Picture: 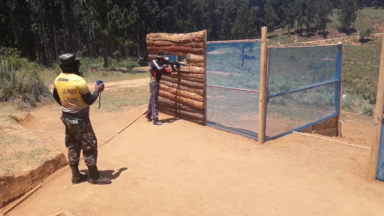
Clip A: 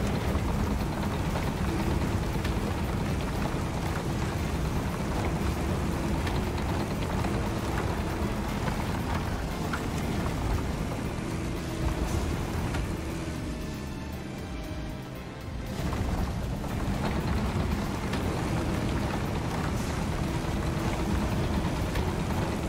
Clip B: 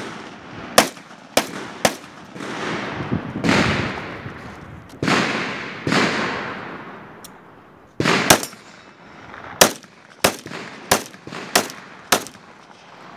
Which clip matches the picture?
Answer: B